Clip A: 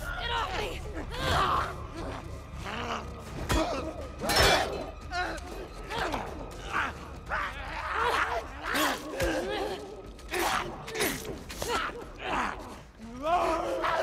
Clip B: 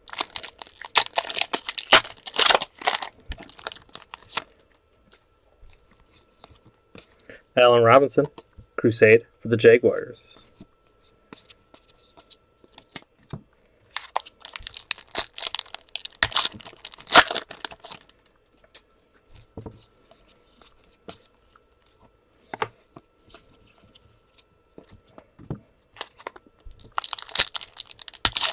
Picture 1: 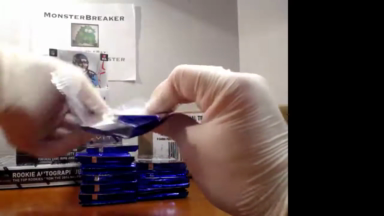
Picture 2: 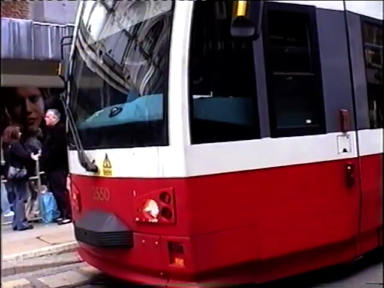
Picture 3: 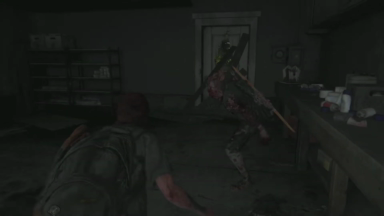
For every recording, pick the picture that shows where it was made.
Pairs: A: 3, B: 1